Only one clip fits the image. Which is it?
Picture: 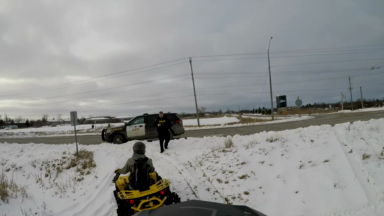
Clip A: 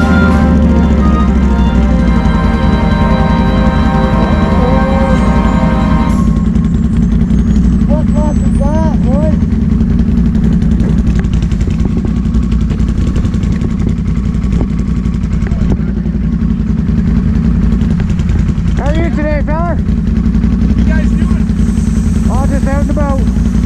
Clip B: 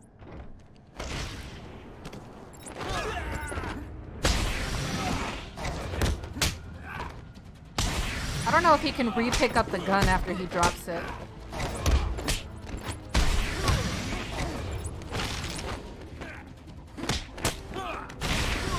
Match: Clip A